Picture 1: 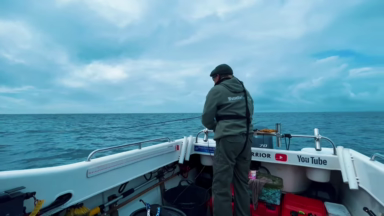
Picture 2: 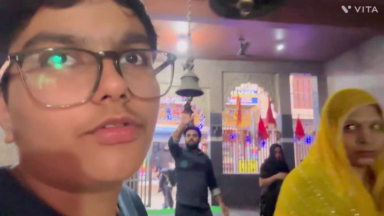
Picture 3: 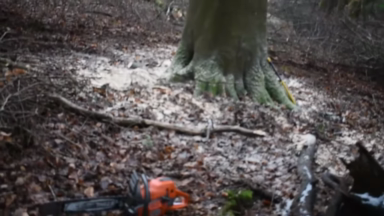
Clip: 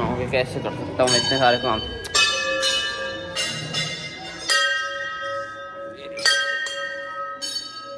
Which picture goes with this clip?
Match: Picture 2